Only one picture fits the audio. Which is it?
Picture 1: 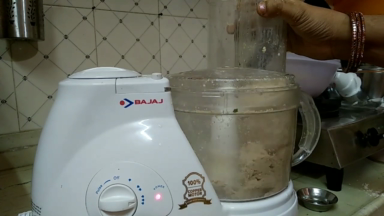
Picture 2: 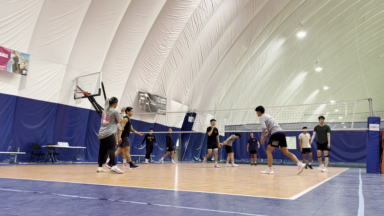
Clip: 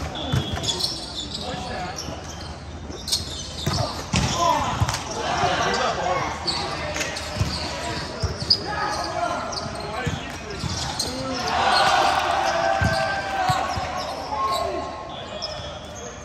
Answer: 2